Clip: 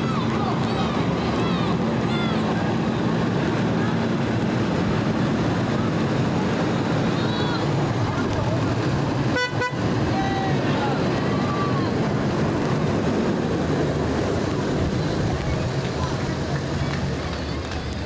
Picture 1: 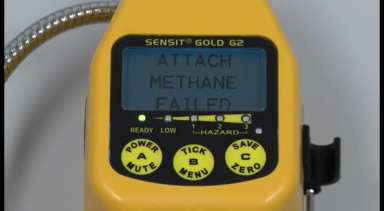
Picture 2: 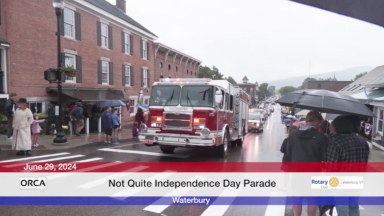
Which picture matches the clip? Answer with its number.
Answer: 2